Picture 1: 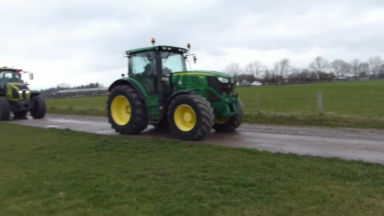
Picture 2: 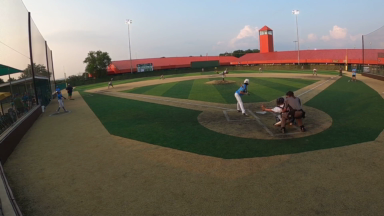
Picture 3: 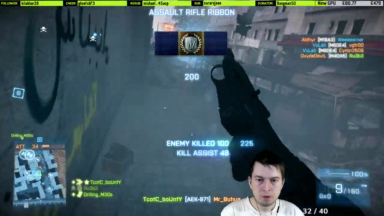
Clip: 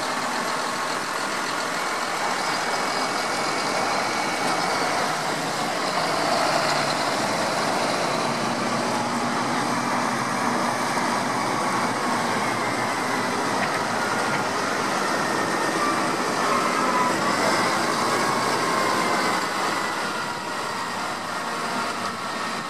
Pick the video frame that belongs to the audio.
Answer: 1